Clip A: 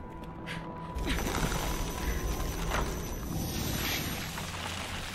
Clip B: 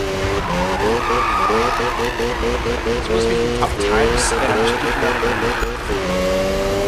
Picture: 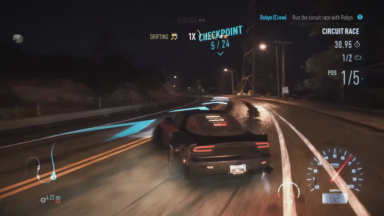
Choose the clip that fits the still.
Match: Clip B